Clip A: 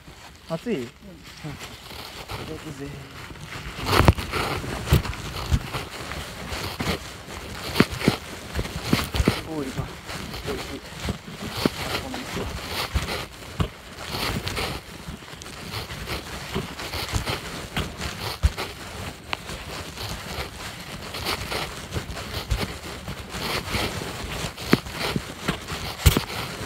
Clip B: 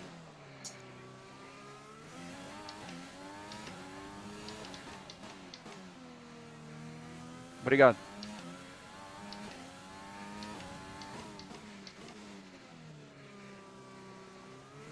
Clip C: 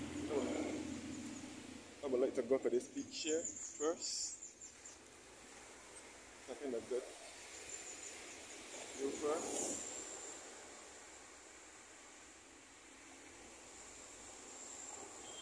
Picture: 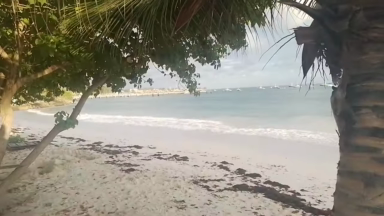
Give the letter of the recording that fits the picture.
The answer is C